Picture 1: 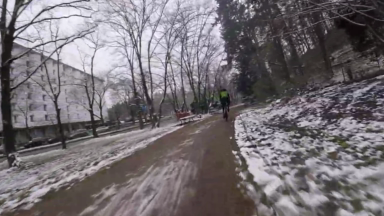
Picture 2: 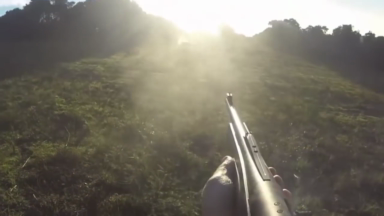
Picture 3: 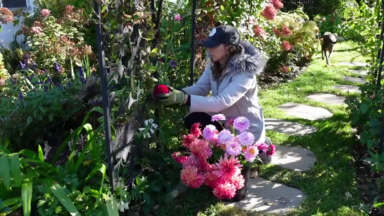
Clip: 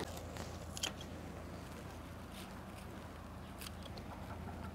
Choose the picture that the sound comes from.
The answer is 3